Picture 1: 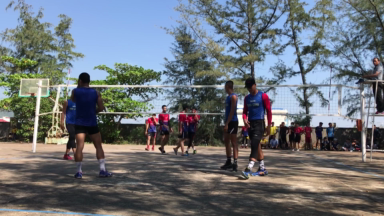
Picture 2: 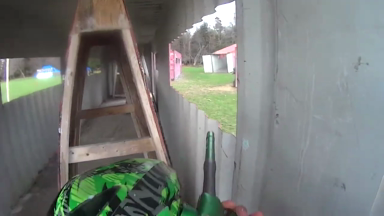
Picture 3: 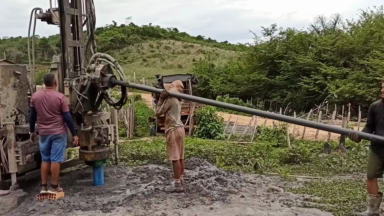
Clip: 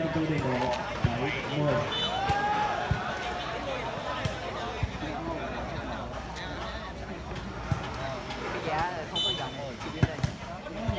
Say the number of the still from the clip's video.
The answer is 1